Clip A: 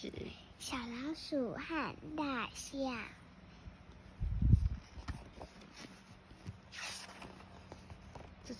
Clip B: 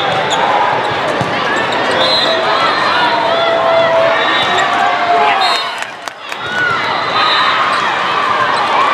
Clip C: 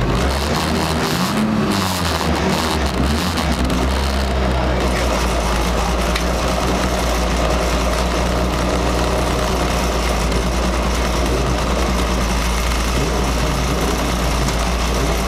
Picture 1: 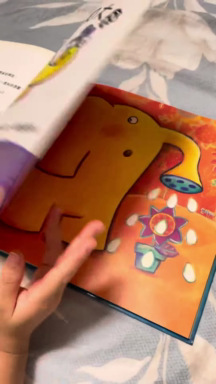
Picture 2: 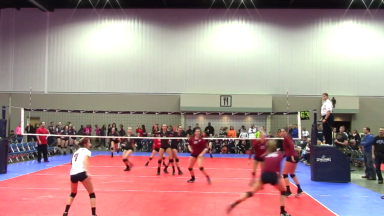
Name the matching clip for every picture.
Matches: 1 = A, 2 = B